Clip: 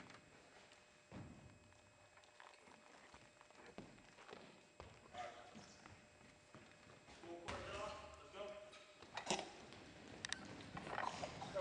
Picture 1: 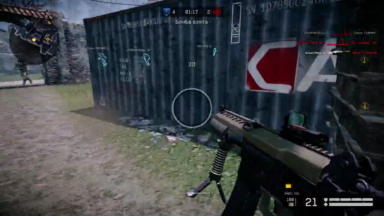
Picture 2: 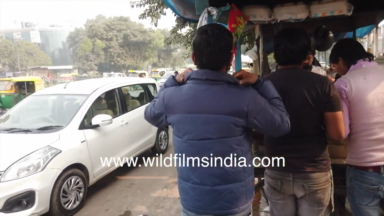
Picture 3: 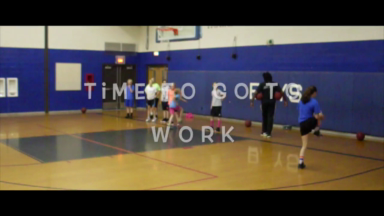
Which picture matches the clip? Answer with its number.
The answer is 3